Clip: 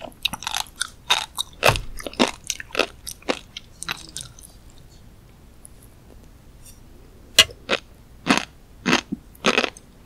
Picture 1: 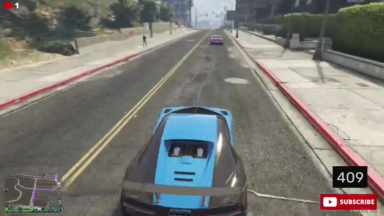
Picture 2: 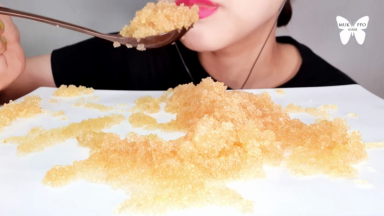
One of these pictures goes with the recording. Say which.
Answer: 2